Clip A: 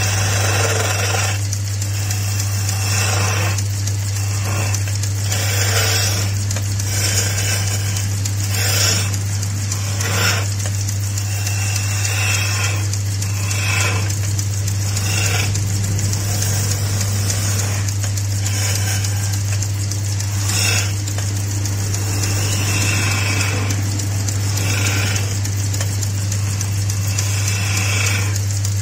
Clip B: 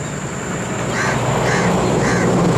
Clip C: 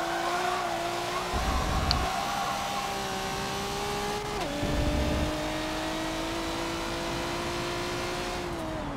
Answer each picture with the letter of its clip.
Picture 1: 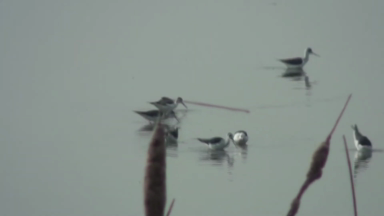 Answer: B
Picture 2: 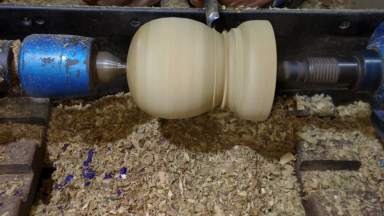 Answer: A